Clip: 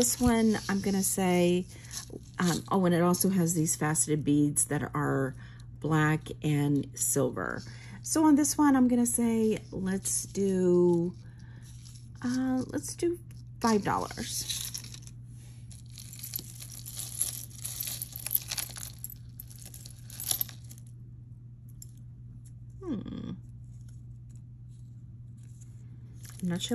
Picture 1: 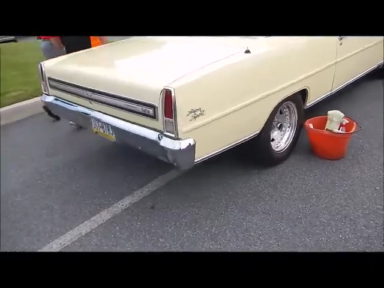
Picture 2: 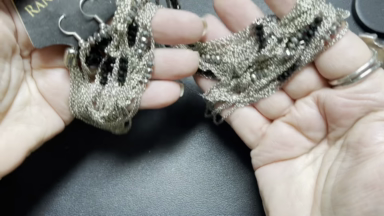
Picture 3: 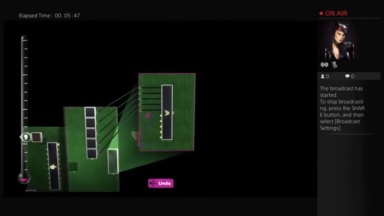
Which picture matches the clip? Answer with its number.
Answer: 2